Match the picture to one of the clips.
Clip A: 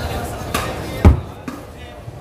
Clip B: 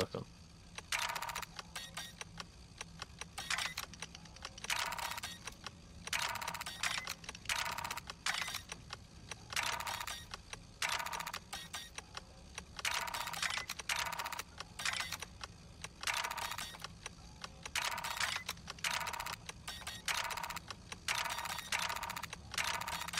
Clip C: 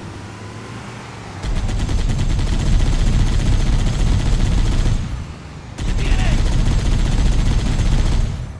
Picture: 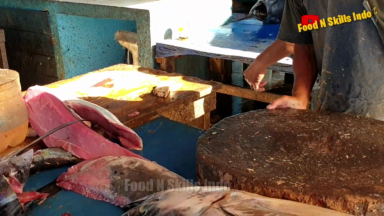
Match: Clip A